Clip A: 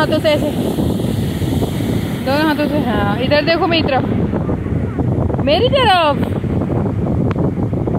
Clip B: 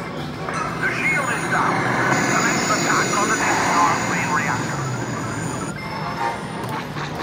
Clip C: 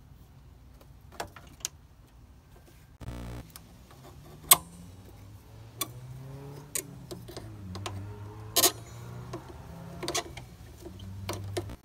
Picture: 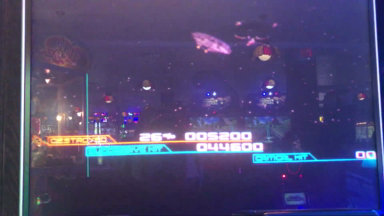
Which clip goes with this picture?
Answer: B